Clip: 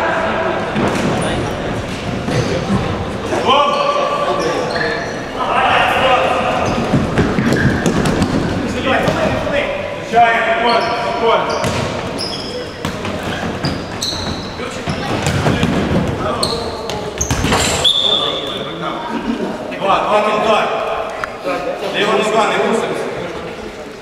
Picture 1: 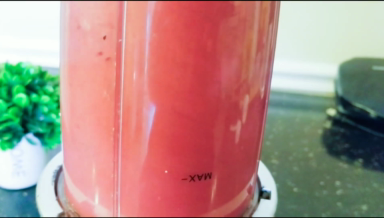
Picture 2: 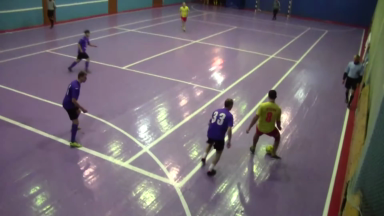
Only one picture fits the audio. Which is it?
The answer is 2